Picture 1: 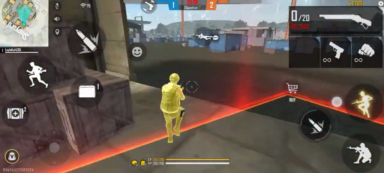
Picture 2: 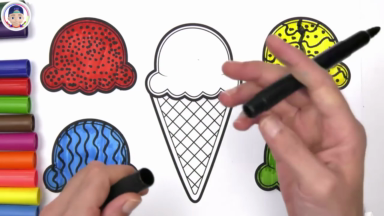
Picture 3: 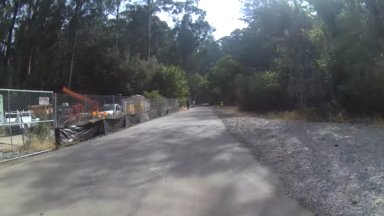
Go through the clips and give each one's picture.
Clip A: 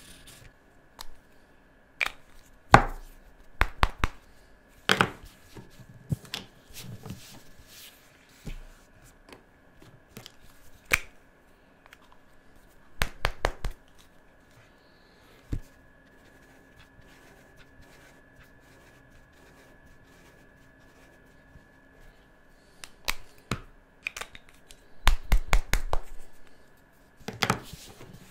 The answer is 2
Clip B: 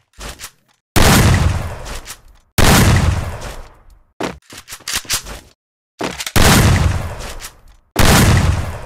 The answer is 1